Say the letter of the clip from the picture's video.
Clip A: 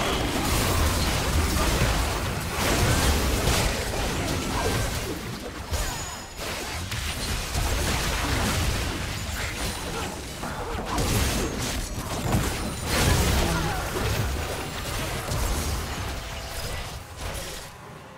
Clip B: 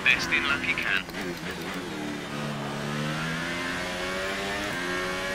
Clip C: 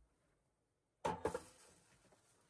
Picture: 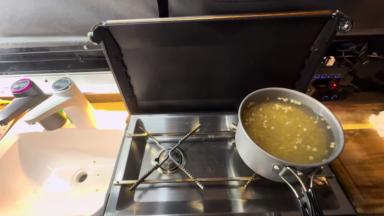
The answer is C